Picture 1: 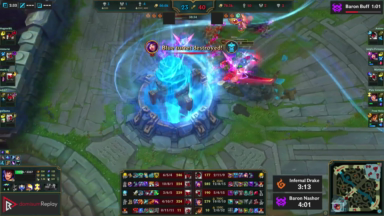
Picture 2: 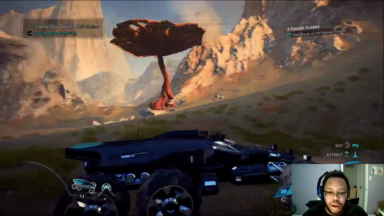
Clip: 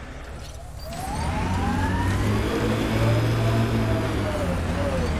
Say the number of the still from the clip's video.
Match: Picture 2